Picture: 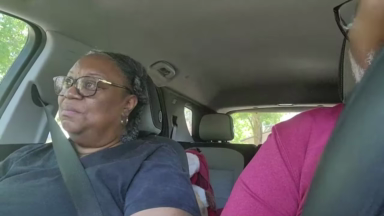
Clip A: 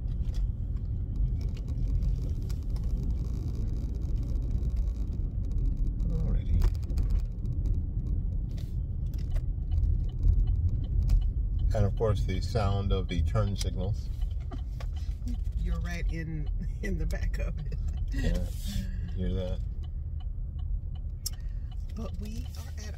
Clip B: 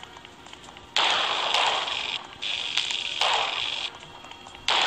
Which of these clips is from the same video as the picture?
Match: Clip A